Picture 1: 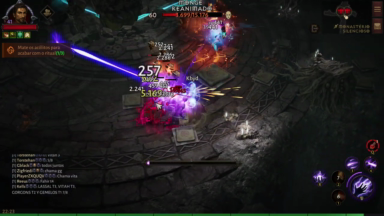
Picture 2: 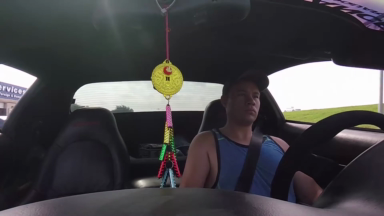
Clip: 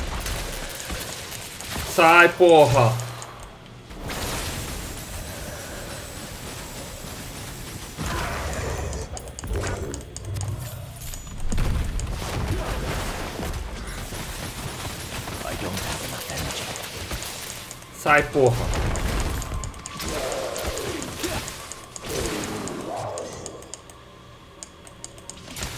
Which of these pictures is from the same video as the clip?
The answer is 1